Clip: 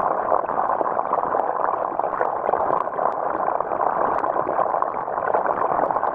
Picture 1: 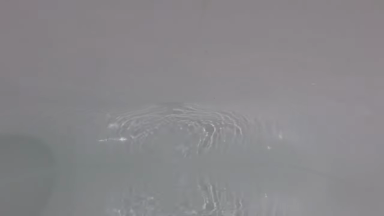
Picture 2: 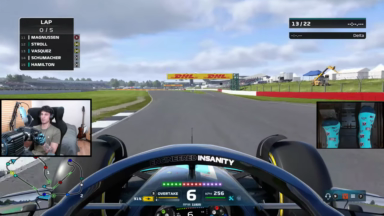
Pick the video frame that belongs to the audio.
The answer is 1